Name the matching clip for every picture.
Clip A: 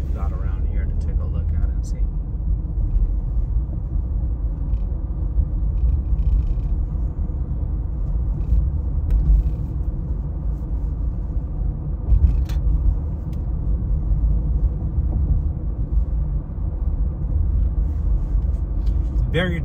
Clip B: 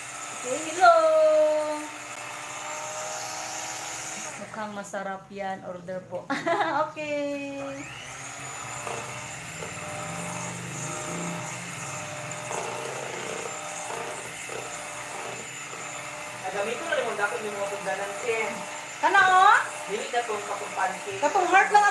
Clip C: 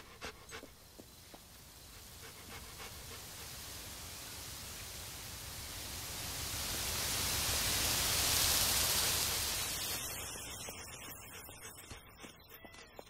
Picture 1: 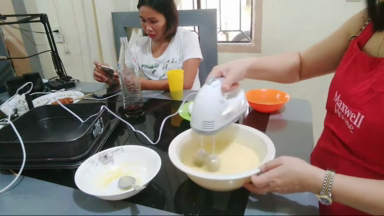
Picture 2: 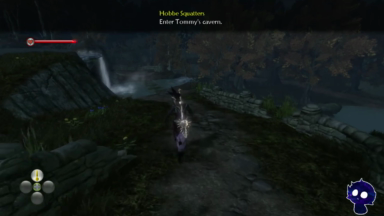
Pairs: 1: B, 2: C